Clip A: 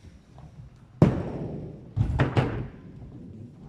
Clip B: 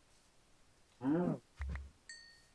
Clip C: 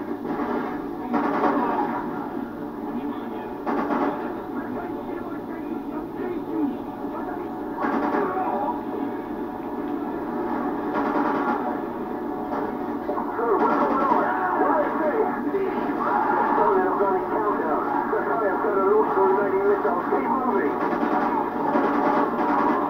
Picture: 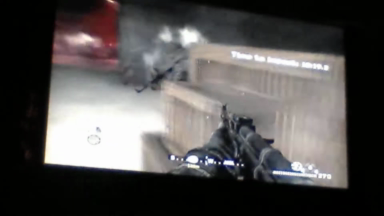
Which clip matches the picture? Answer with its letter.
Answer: C